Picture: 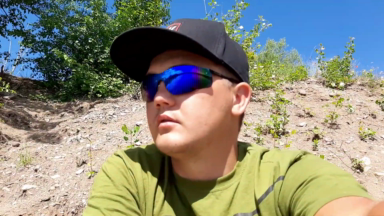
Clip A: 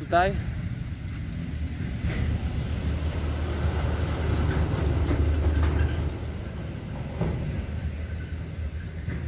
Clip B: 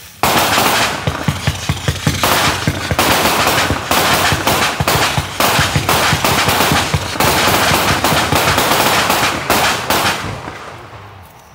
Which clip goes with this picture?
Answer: A